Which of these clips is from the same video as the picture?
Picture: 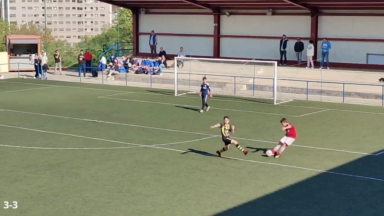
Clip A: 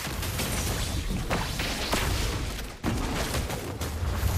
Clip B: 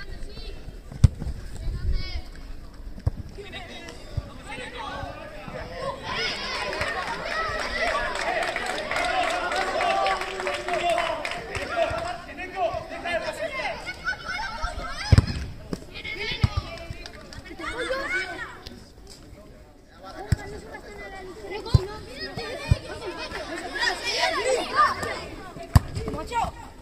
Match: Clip B